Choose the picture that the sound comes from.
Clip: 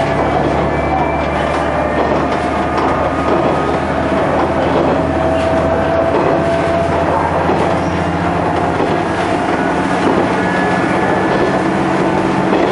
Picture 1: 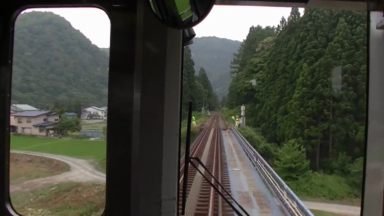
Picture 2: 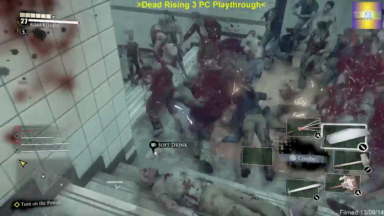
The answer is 1